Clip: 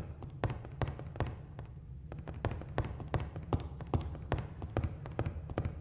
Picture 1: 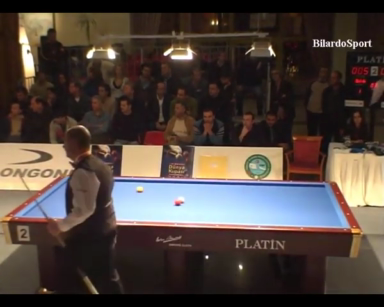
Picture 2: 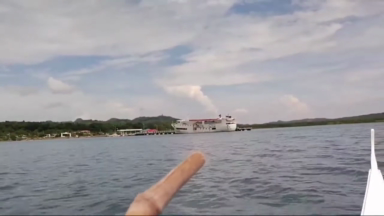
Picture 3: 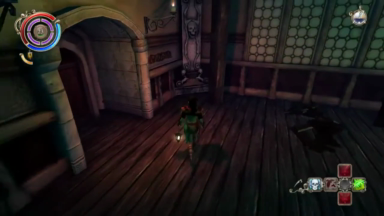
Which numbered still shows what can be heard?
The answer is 3